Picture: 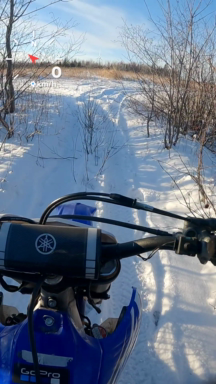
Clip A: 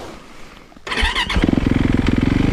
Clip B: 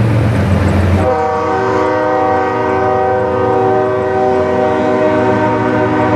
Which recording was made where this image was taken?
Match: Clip A